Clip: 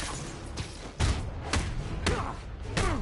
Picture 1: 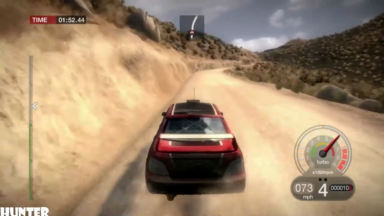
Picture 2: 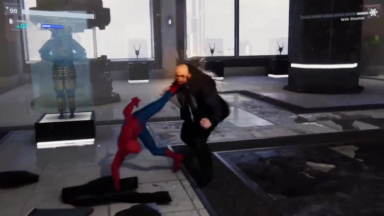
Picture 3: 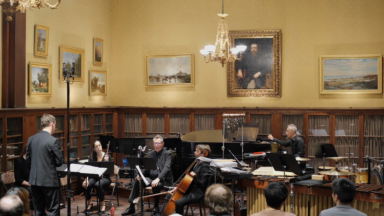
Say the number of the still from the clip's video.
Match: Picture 2